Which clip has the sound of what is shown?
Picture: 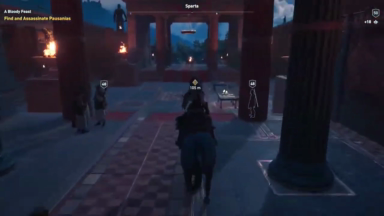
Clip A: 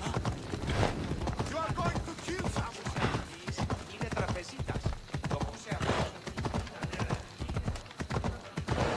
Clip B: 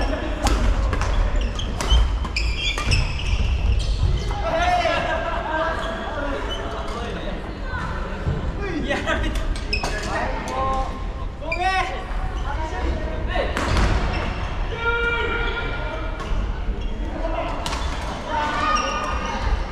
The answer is A